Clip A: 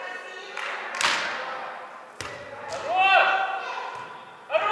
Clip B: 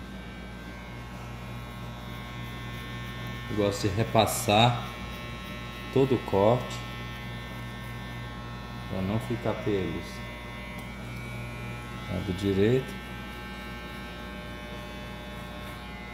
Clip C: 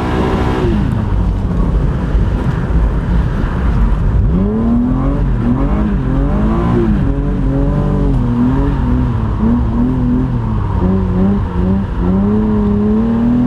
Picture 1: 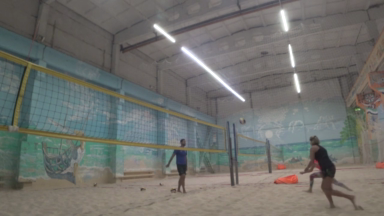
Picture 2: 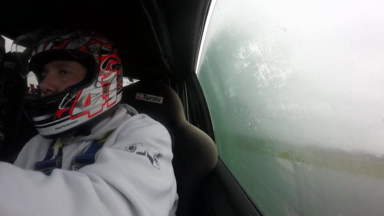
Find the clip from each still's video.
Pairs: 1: A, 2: C